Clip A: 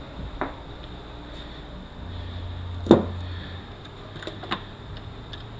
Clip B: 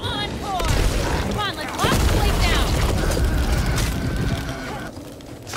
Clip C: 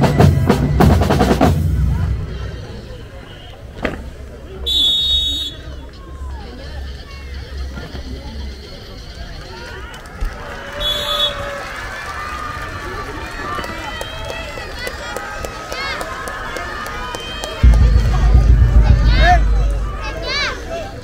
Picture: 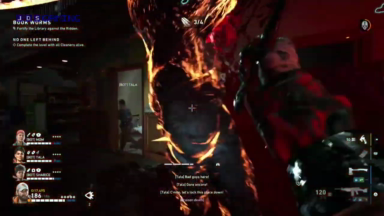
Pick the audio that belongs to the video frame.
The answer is B